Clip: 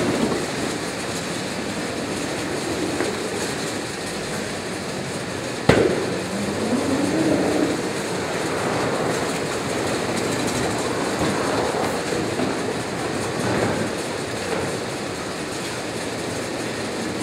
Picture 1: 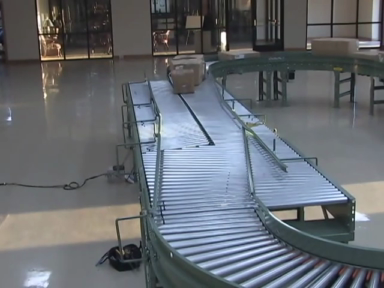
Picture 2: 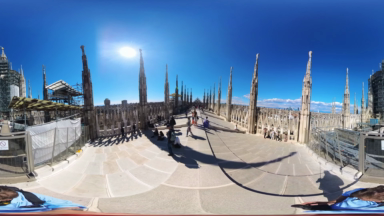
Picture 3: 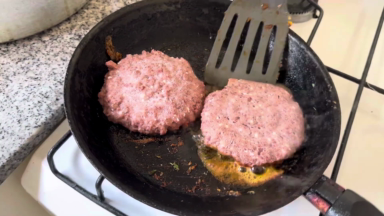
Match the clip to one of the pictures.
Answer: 1